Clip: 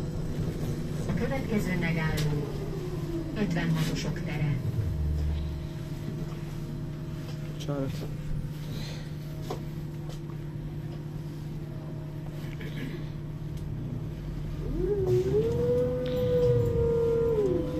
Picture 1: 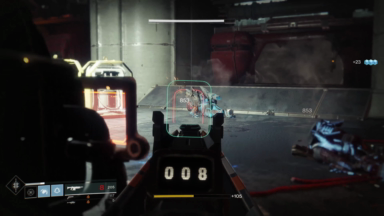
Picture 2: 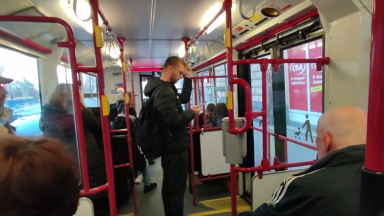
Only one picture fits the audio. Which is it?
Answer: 2